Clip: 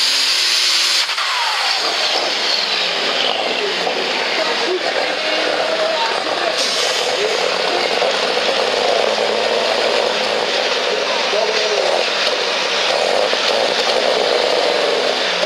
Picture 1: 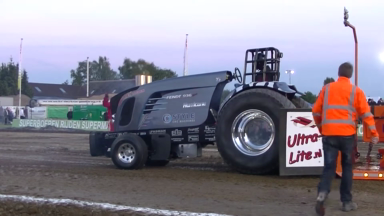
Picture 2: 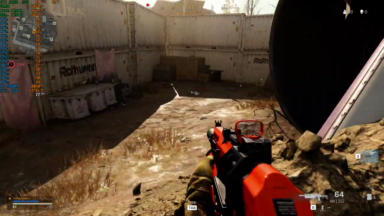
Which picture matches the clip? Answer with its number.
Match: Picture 1